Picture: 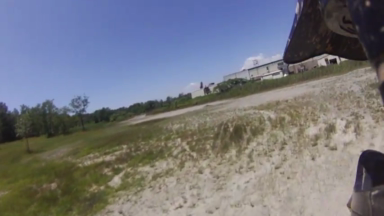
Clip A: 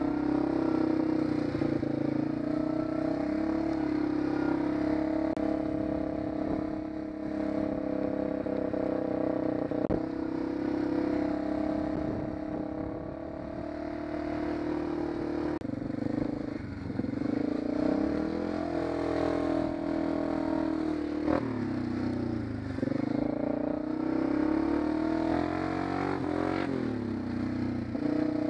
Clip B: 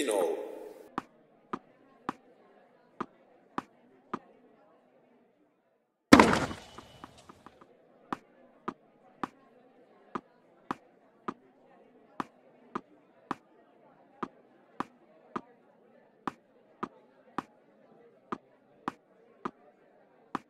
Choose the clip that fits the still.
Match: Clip A